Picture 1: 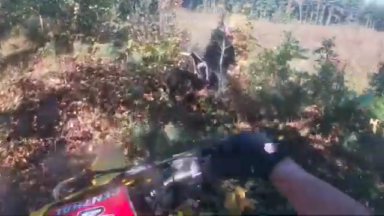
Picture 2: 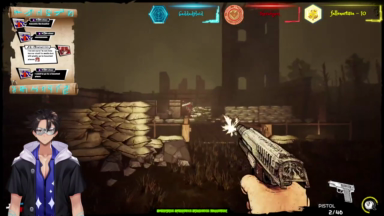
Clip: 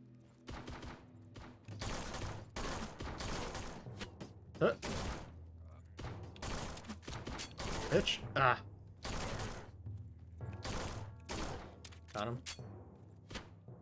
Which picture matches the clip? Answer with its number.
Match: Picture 2